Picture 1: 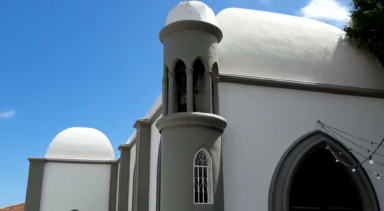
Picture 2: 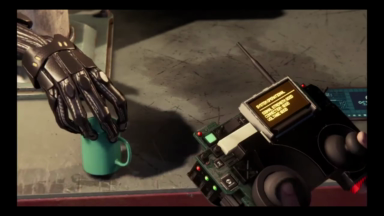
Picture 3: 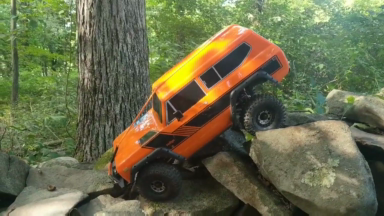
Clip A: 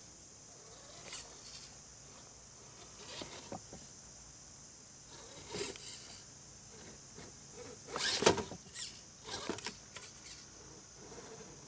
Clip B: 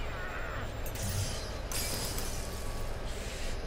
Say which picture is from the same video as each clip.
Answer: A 3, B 2